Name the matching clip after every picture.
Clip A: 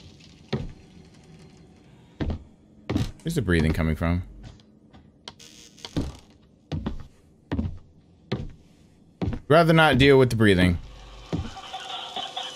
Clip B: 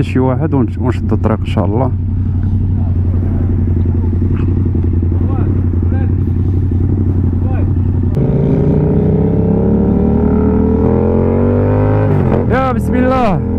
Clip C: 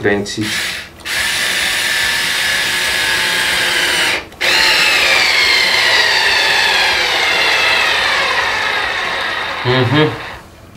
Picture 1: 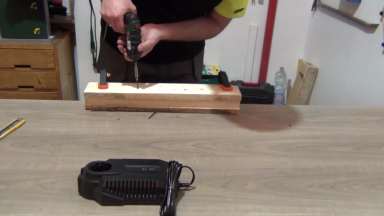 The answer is C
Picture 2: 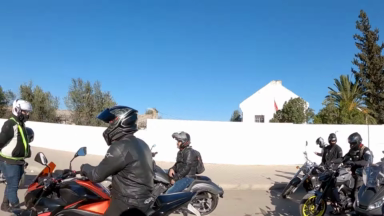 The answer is B